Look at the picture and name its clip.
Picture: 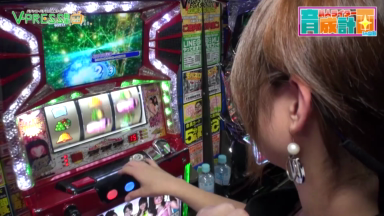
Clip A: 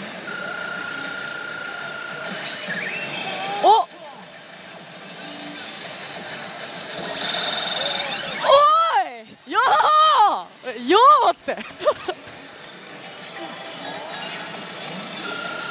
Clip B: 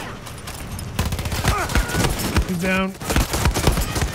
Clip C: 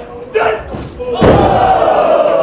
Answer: A